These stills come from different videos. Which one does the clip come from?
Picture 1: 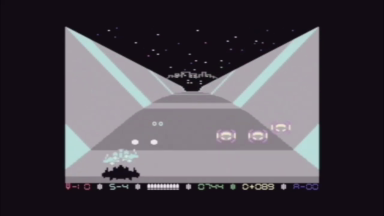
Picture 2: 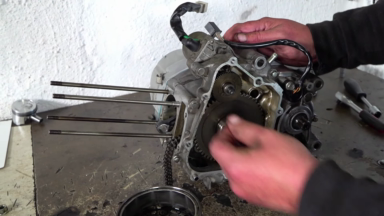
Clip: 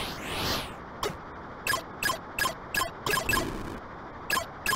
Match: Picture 1